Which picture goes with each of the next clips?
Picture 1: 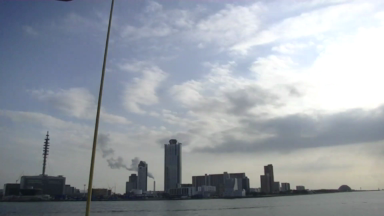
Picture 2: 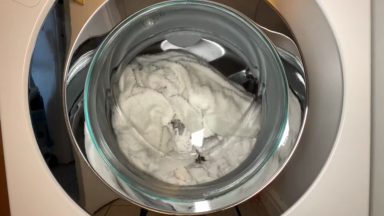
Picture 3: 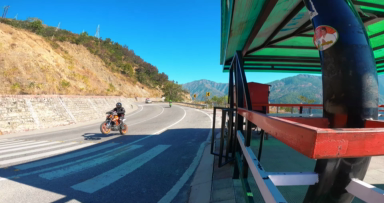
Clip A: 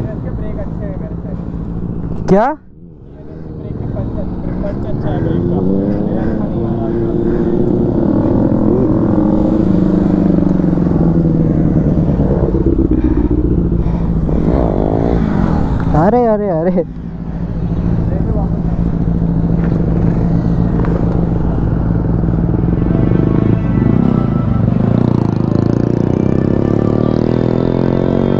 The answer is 3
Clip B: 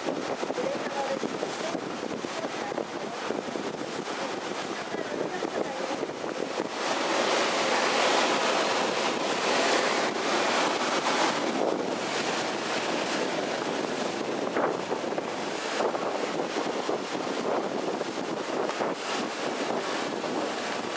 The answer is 1